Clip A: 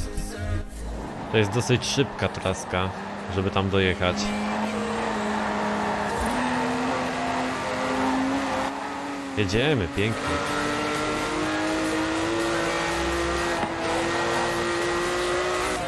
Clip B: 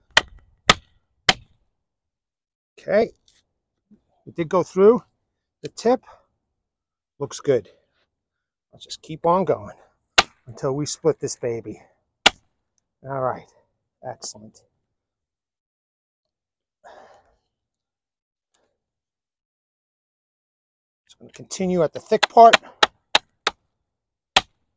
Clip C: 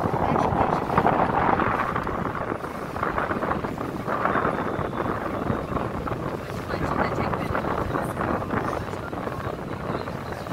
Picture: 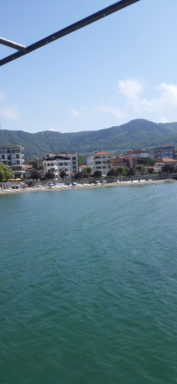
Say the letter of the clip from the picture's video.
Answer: C